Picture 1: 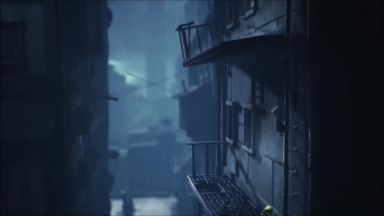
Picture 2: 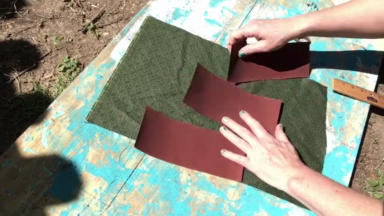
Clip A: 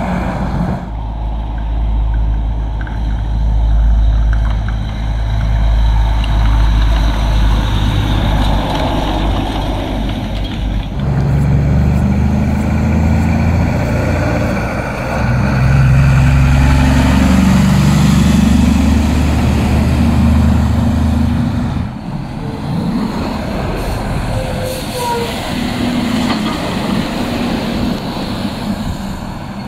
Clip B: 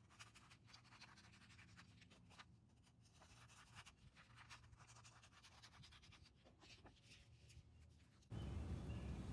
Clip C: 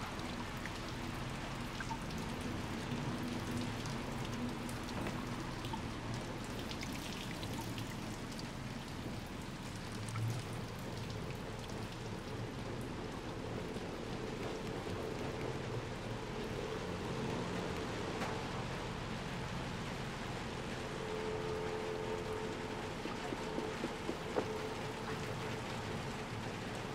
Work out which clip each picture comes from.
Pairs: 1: C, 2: B